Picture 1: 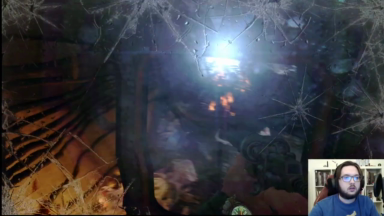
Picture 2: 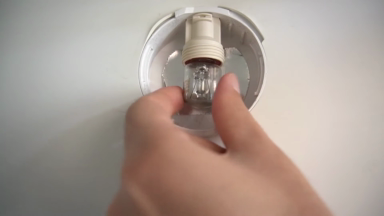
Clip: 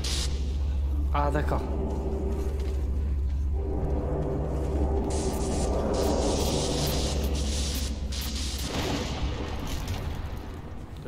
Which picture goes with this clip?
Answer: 1